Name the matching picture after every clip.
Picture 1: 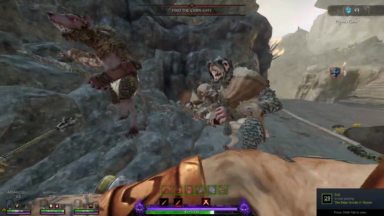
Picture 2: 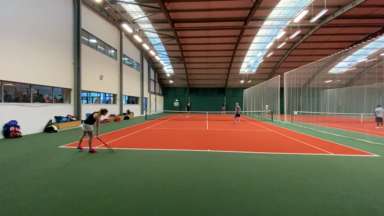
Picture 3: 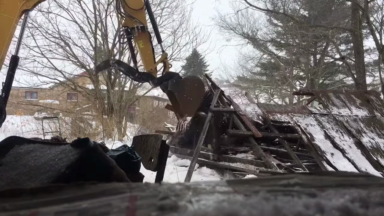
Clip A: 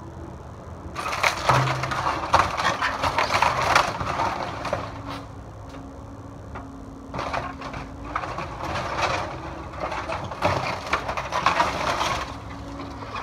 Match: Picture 3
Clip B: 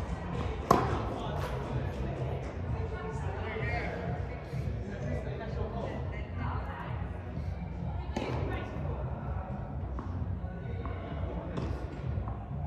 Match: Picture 2